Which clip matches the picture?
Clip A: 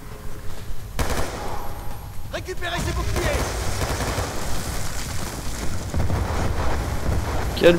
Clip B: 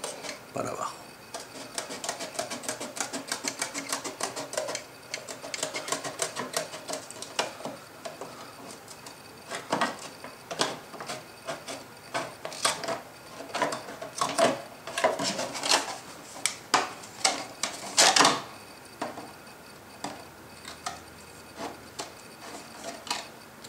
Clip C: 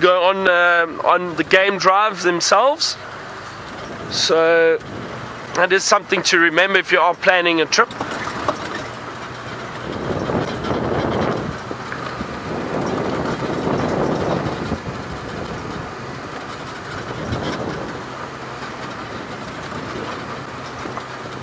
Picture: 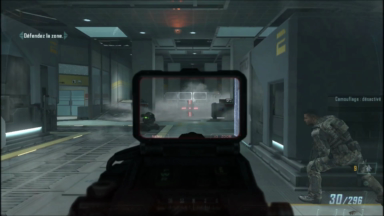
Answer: A